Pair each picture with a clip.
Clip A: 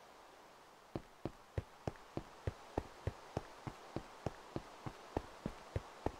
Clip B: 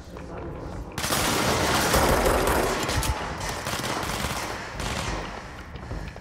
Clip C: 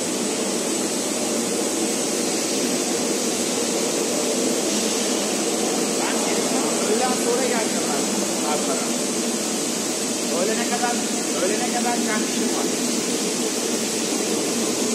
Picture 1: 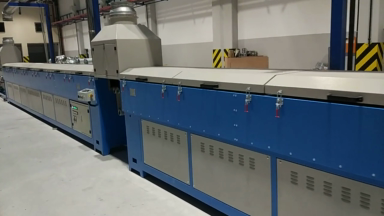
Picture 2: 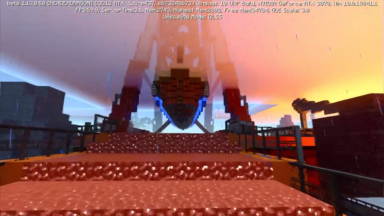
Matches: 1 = C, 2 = A